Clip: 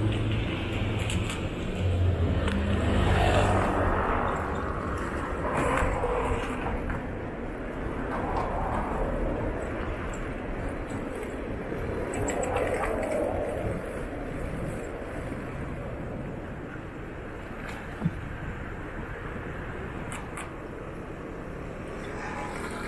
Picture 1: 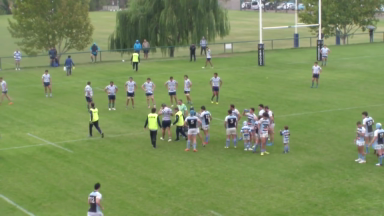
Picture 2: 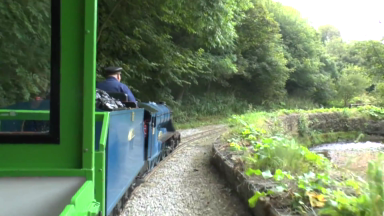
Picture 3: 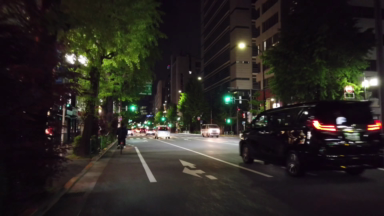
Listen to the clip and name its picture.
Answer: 3